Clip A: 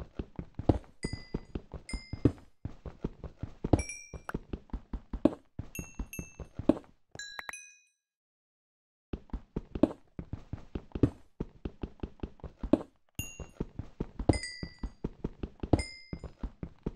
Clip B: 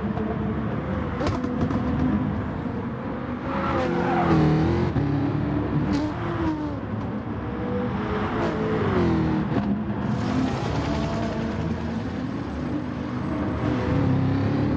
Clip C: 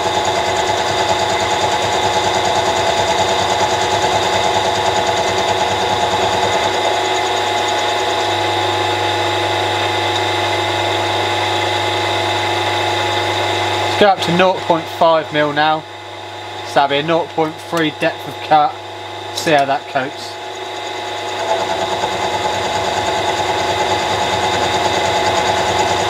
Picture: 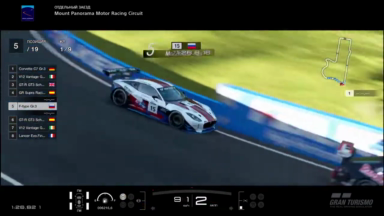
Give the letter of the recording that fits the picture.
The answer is B